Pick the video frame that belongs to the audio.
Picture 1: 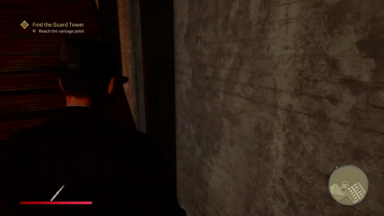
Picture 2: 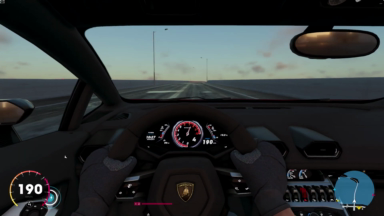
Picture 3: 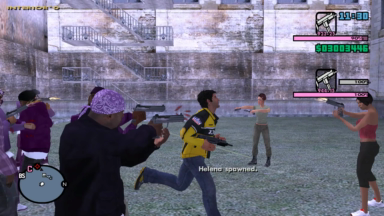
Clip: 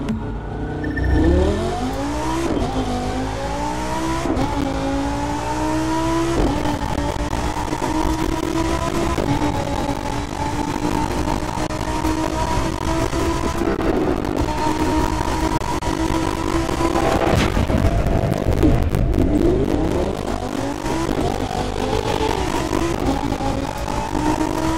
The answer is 2